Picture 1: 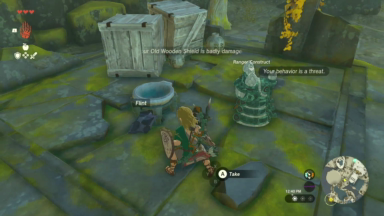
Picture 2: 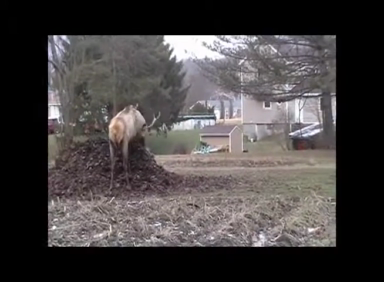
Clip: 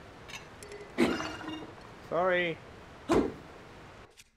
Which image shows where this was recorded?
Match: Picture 1